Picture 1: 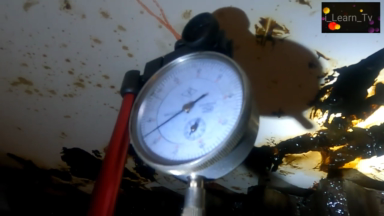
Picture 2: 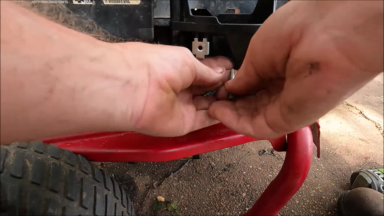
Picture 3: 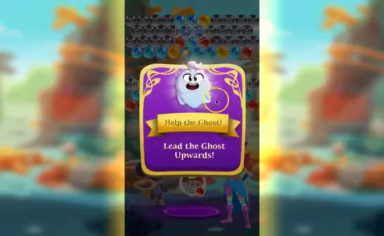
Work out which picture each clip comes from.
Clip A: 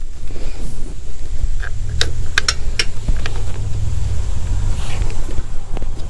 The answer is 2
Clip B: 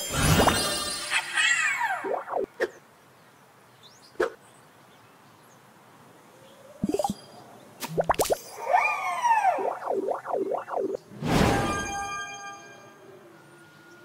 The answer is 3